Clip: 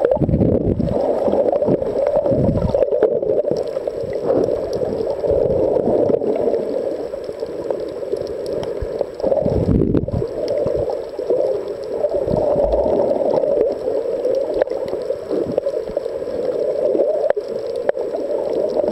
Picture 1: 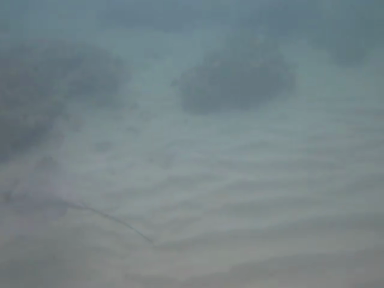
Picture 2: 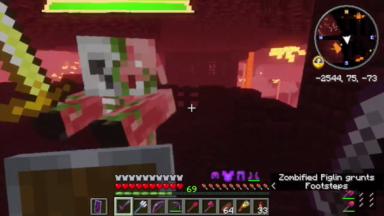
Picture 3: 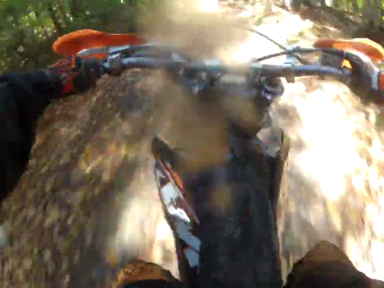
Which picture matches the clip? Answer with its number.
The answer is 1